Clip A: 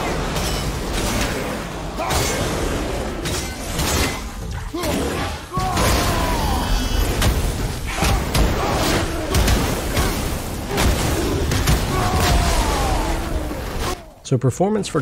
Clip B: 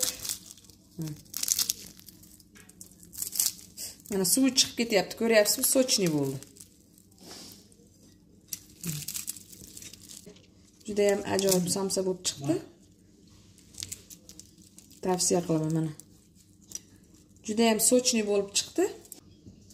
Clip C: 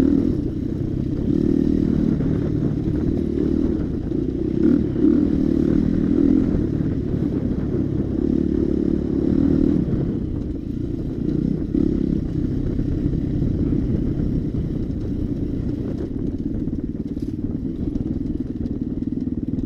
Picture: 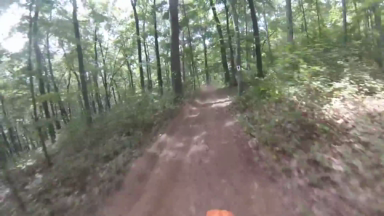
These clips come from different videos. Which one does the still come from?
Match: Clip C